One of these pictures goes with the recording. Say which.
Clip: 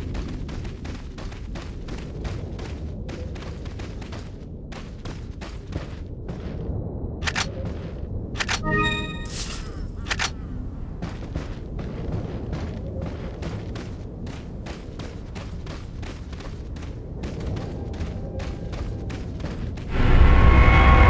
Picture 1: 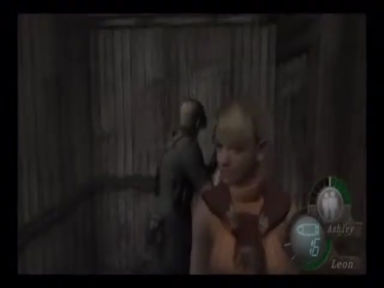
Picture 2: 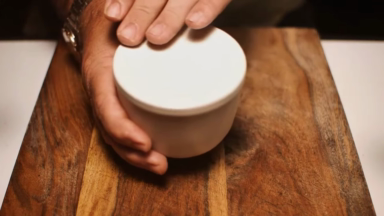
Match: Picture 1